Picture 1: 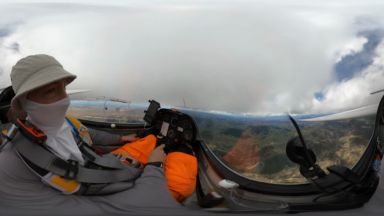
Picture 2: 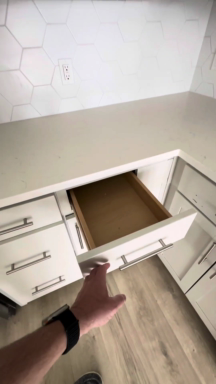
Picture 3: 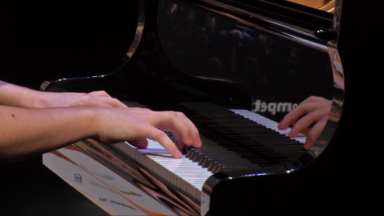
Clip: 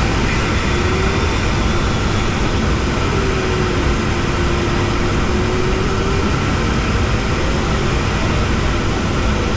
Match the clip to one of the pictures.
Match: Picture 1